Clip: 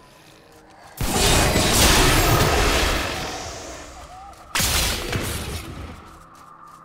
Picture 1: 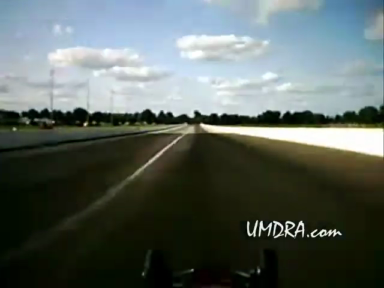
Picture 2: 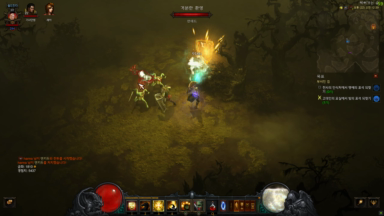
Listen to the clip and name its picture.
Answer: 2